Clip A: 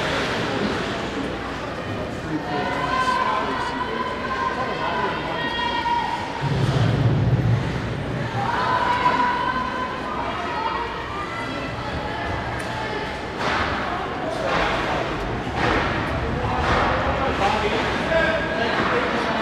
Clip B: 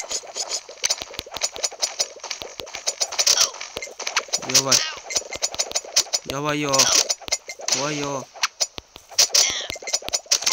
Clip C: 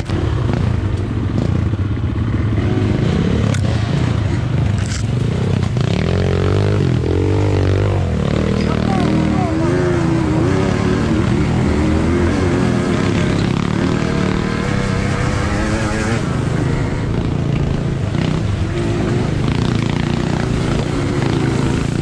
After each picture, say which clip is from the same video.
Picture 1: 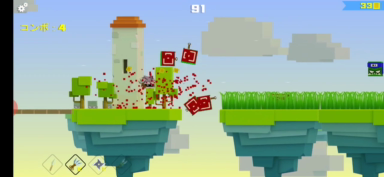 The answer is B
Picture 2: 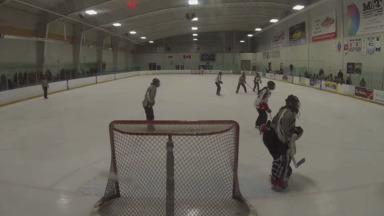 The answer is A